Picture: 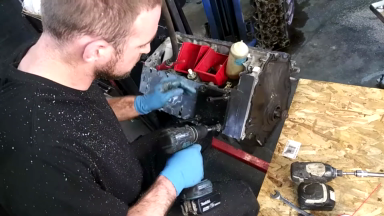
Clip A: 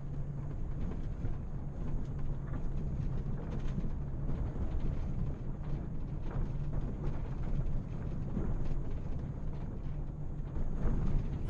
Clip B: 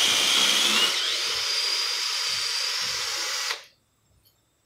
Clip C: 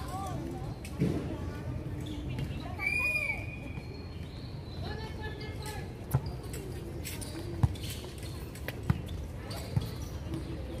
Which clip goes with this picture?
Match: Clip B